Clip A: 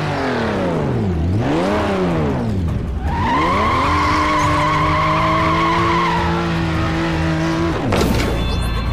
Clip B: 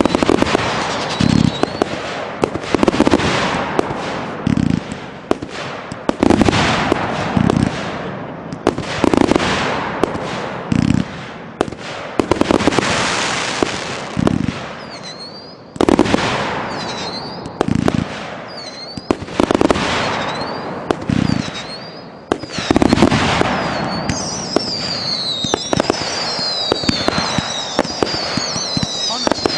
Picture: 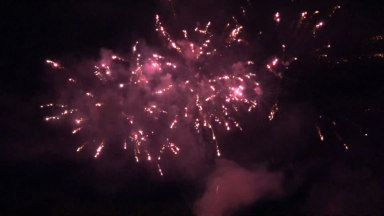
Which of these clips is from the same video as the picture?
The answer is B